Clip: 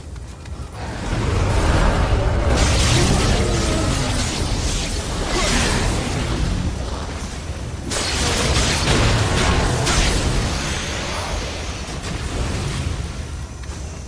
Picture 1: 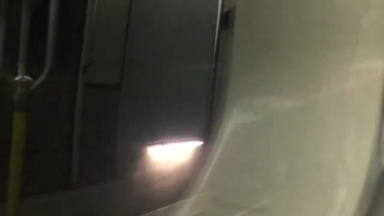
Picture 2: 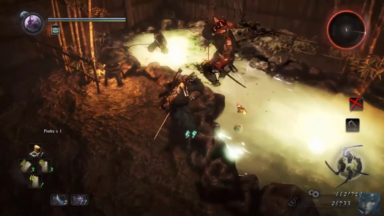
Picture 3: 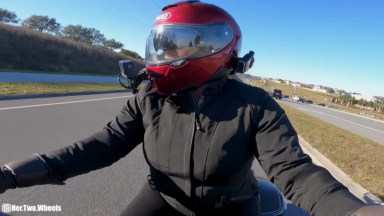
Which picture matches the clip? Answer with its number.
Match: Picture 2